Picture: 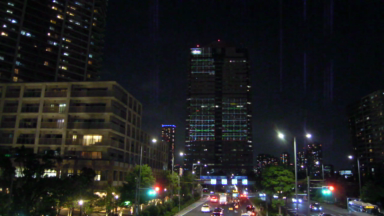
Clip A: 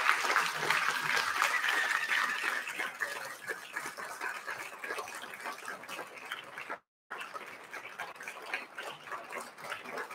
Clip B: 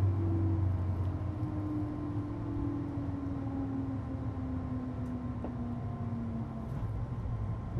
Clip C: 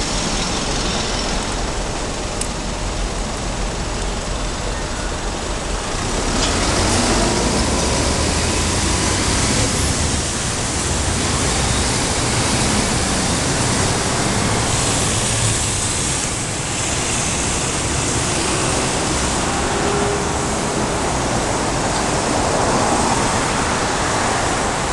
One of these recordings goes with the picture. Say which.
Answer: C